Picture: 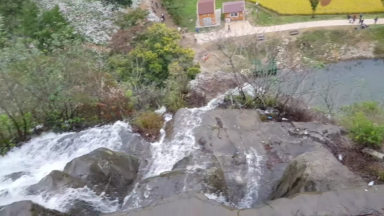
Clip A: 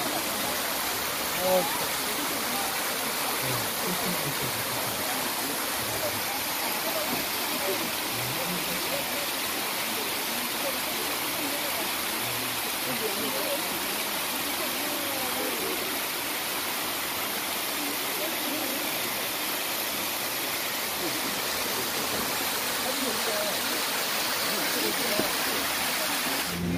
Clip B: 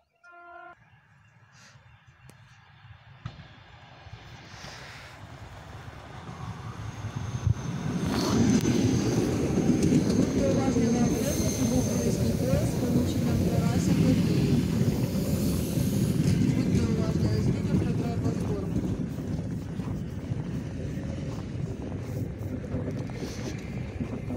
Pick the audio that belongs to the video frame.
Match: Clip A